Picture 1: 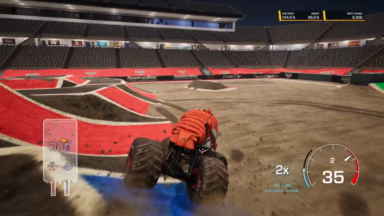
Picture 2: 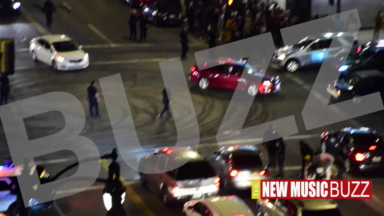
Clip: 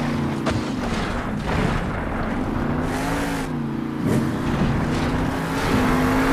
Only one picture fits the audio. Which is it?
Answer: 1